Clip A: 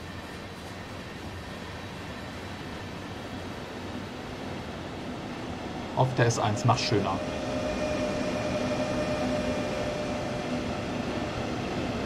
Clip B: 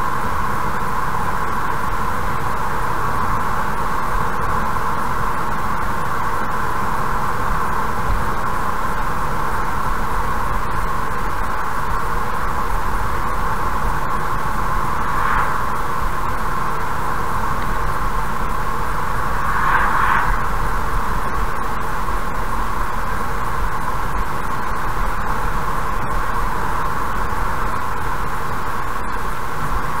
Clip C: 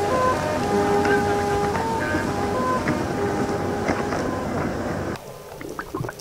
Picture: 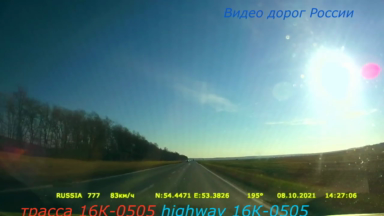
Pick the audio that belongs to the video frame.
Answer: B